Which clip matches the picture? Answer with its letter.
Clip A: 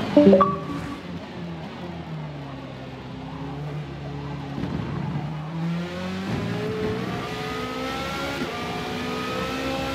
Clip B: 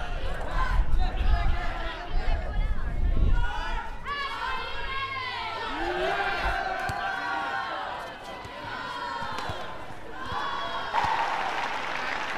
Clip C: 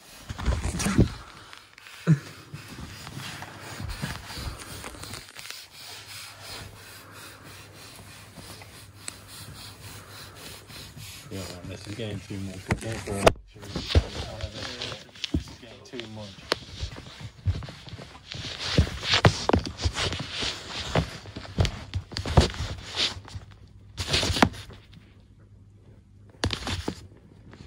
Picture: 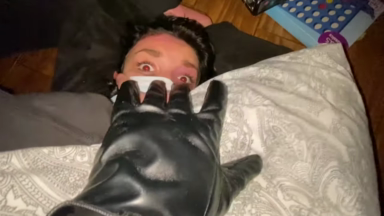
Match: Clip C